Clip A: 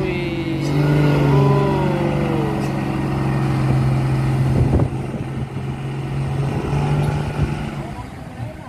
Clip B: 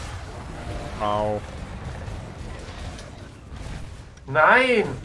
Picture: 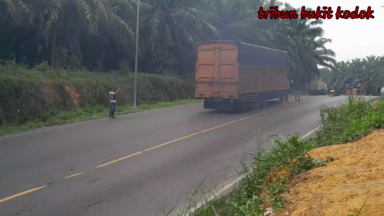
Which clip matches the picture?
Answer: A